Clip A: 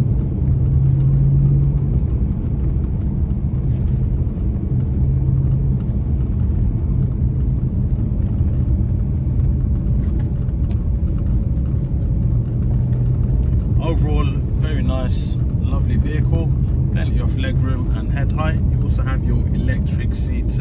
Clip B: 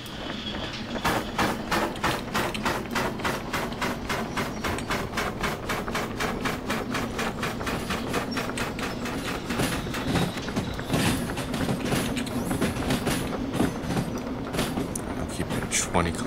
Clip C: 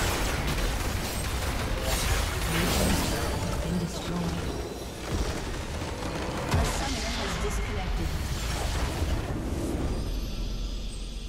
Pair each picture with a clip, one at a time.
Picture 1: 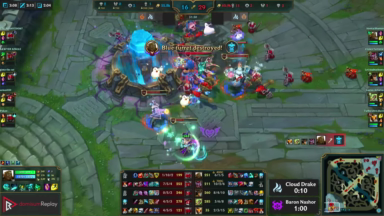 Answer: C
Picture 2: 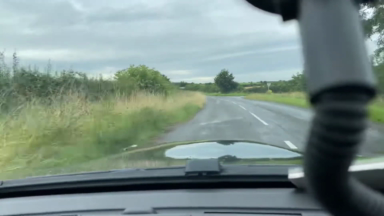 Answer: A